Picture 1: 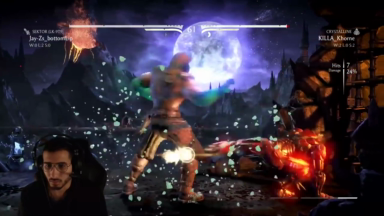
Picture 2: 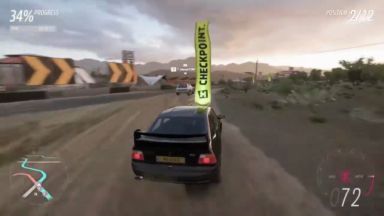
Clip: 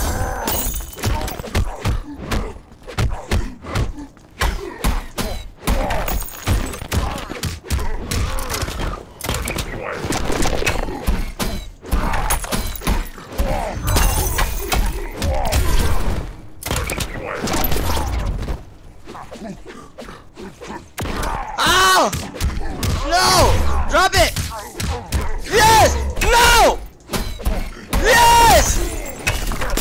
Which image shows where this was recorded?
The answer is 1